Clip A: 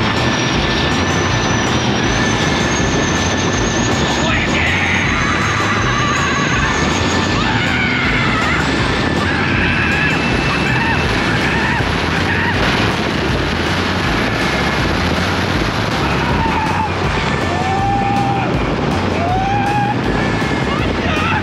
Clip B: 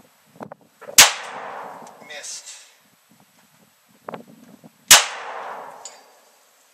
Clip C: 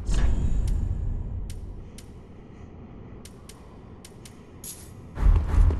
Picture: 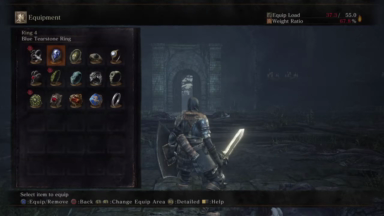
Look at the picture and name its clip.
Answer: C